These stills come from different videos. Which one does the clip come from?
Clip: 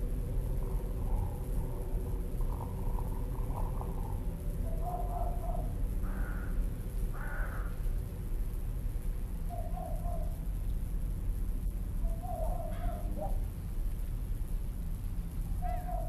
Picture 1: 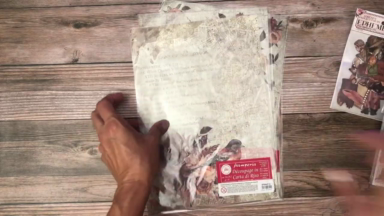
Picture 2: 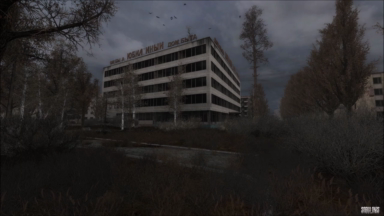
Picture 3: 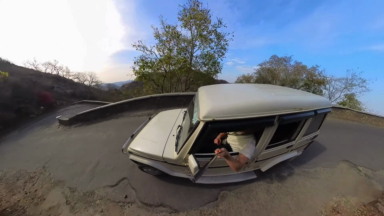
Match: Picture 2